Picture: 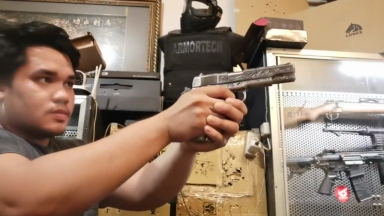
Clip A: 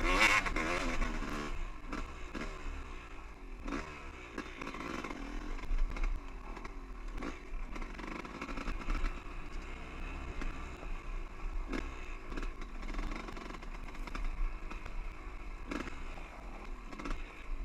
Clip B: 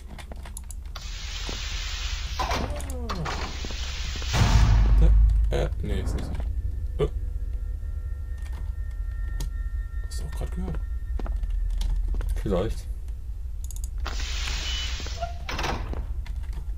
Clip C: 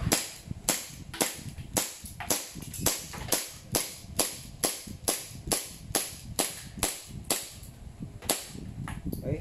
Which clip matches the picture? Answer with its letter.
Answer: C